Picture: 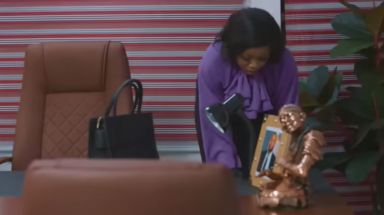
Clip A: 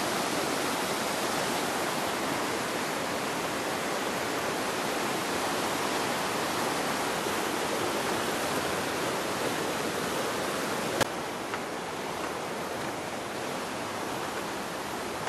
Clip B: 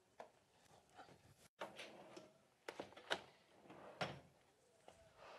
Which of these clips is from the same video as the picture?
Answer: B